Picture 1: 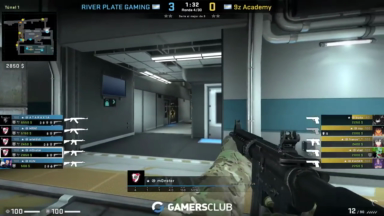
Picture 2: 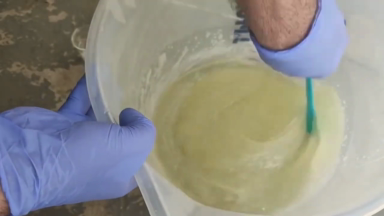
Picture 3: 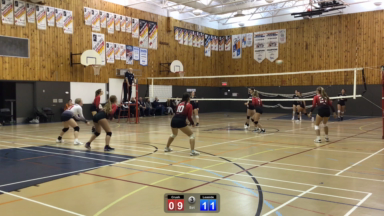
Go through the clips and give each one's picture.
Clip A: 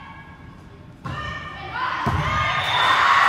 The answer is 3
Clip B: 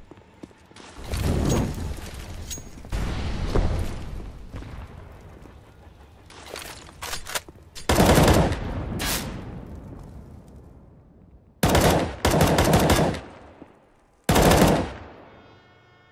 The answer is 1